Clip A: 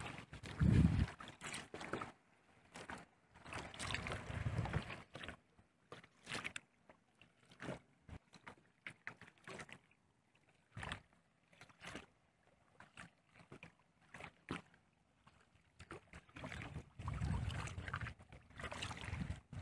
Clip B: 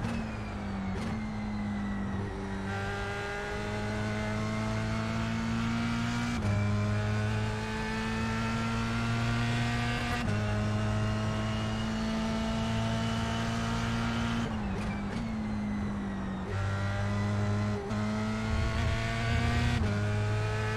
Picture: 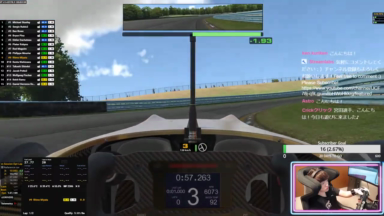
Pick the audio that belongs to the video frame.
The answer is B